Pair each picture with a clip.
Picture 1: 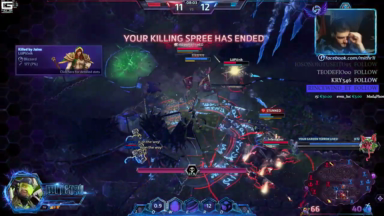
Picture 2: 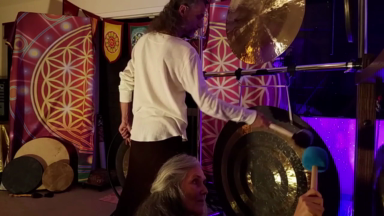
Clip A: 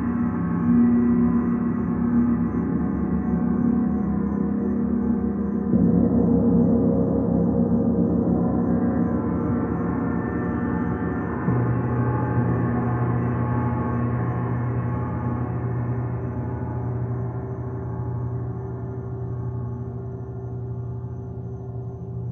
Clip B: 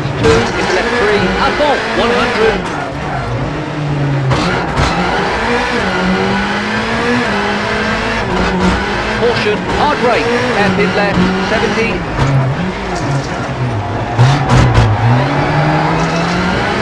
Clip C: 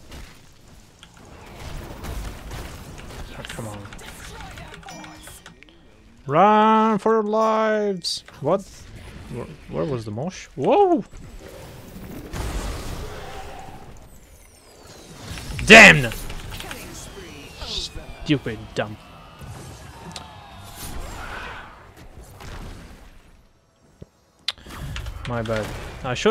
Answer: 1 C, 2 A